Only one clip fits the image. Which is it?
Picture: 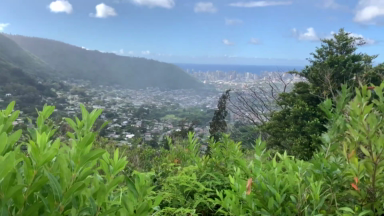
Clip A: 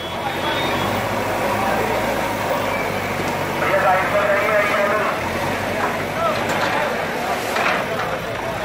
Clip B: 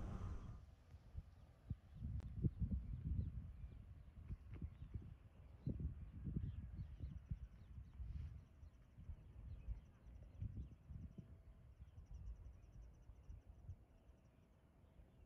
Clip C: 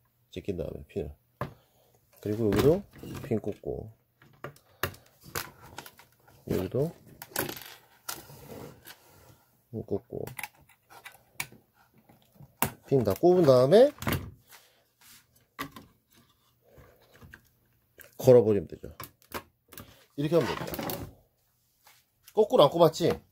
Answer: B